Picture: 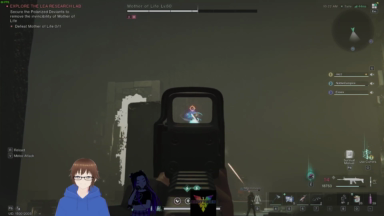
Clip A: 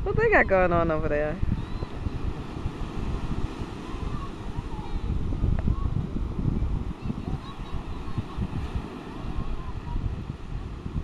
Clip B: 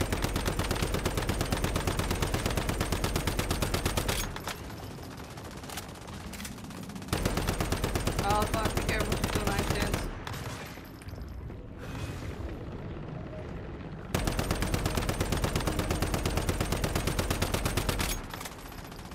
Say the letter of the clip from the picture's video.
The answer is B